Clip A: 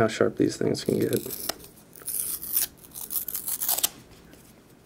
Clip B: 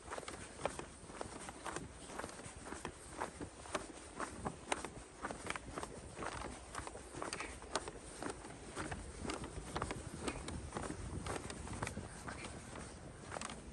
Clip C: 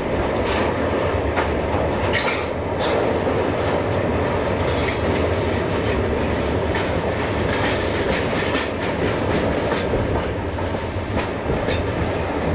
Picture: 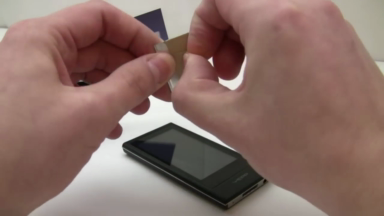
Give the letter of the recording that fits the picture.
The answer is A